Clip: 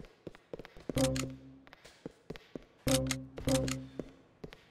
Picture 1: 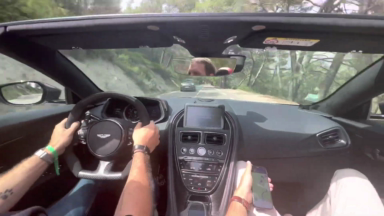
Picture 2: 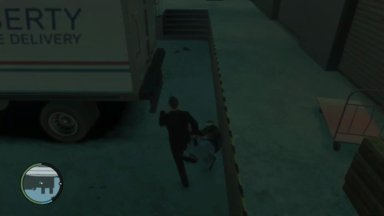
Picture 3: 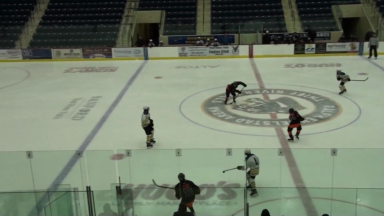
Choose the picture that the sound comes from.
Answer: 2